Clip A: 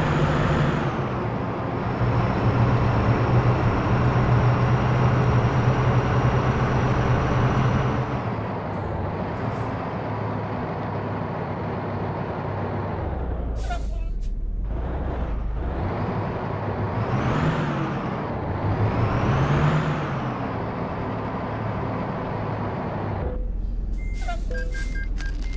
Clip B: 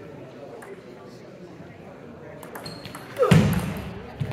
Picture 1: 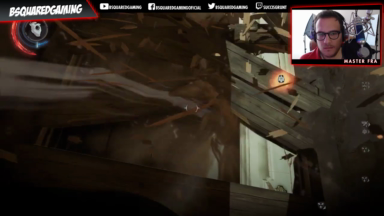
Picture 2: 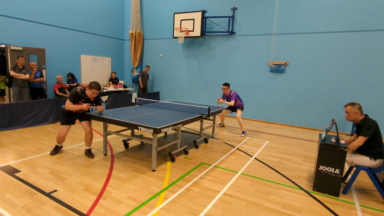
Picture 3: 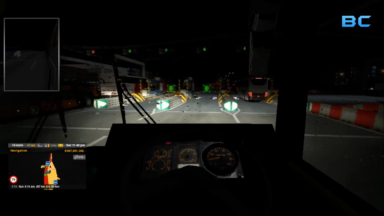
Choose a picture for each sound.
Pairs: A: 3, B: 2